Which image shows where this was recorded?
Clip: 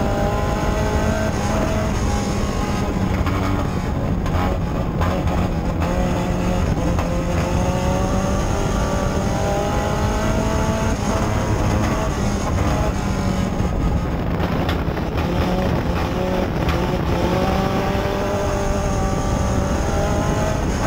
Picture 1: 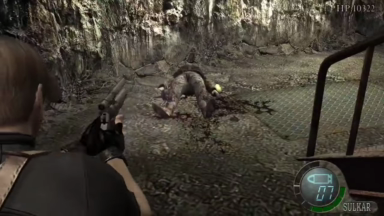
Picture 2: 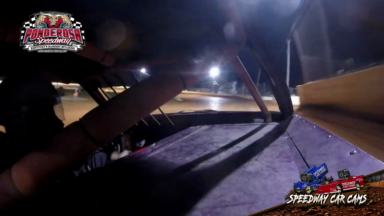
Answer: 2